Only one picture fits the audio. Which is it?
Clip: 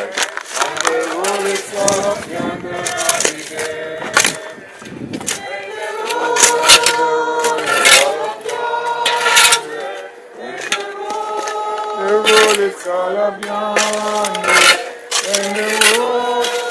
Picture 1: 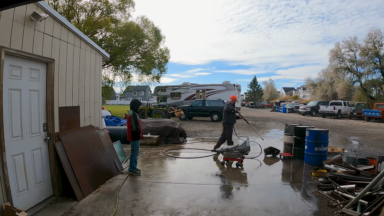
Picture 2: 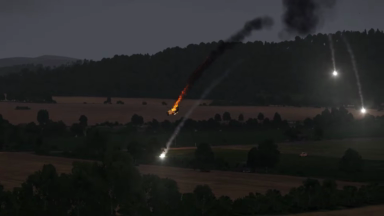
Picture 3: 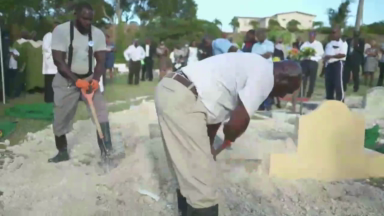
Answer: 3